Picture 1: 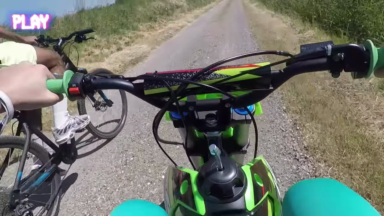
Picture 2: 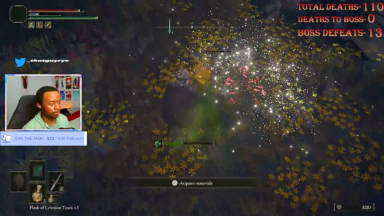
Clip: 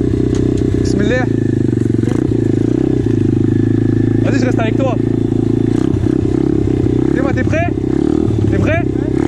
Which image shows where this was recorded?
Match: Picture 1